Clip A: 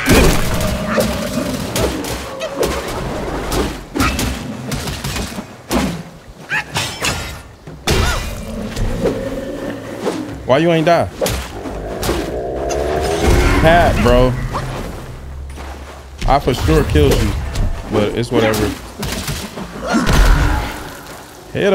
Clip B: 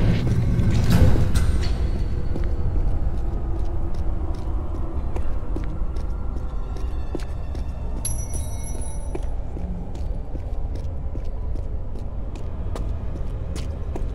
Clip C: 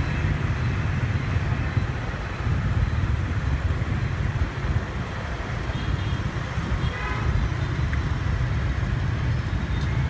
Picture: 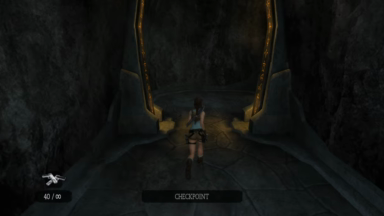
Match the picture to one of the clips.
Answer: B